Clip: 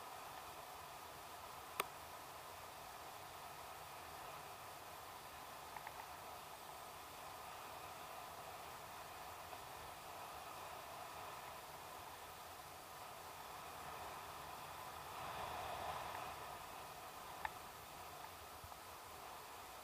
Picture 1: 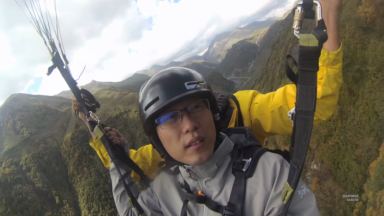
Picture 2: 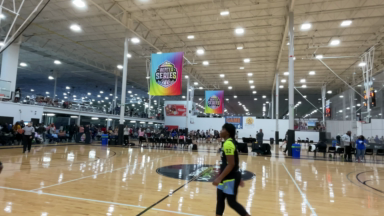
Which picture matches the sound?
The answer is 1